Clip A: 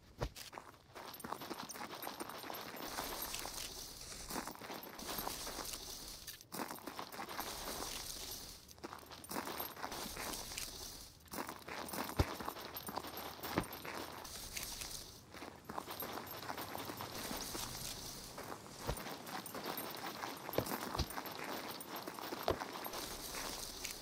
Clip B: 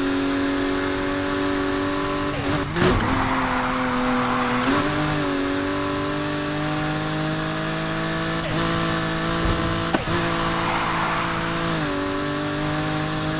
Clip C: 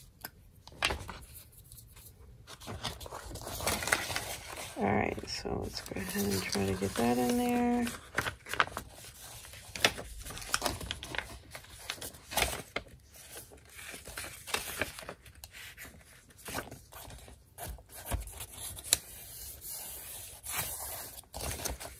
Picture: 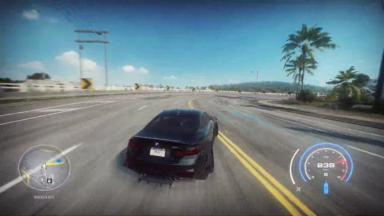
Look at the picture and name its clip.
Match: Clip B